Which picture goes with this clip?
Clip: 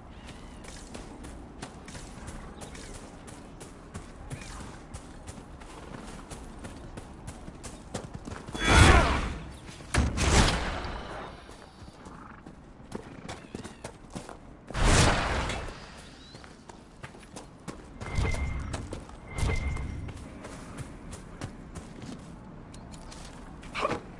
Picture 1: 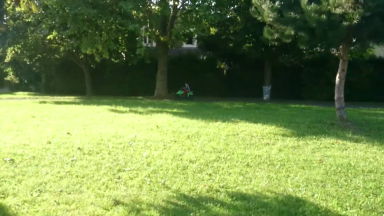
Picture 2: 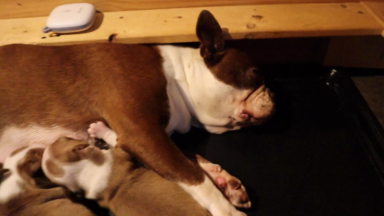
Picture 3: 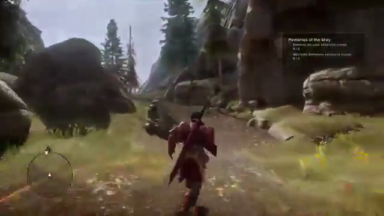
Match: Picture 3